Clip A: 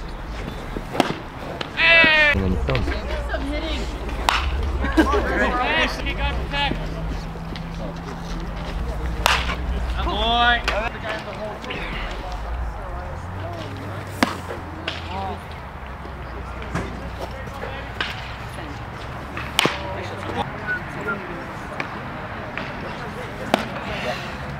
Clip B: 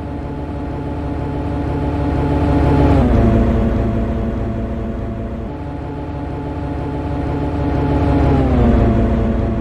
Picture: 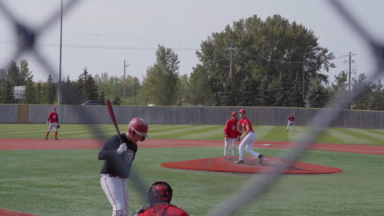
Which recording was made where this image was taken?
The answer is A